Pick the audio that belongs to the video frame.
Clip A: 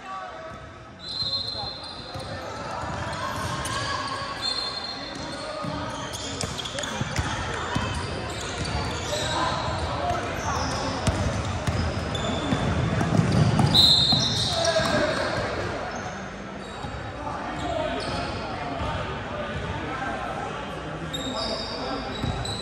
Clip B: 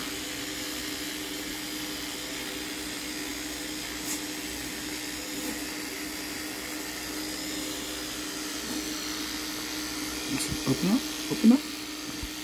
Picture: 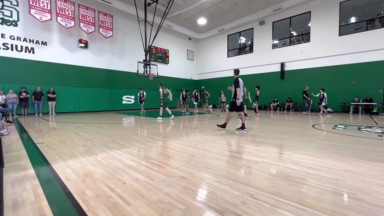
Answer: A